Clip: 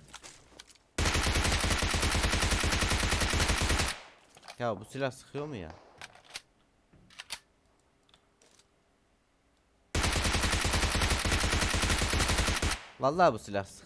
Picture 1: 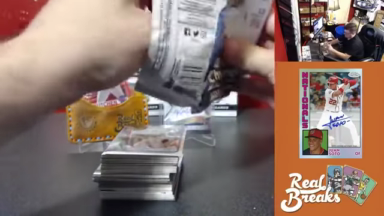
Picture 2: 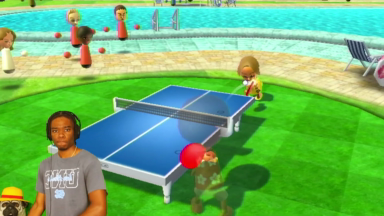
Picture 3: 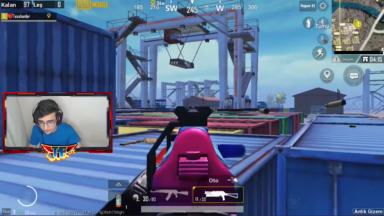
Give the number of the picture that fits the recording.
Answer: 3